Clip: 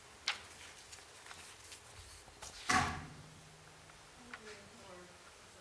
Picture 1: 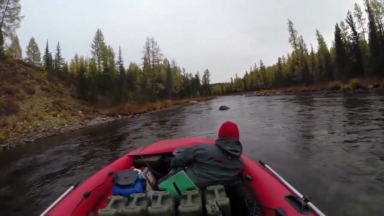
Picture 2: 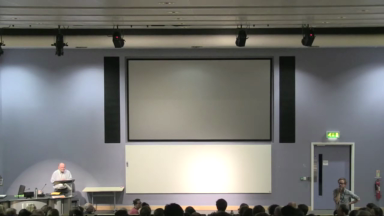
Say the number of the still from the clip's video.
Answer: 2